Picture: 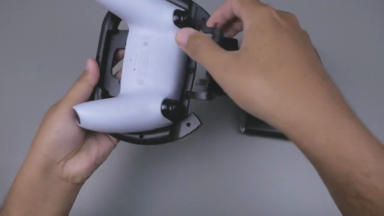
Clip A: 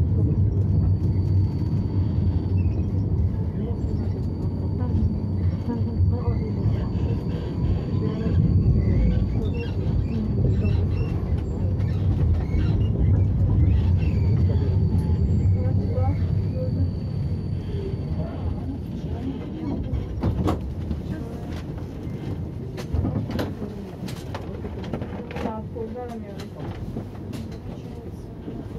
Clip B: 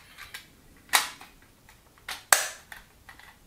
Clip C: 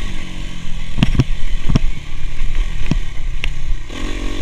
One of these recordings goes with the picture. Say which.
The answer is B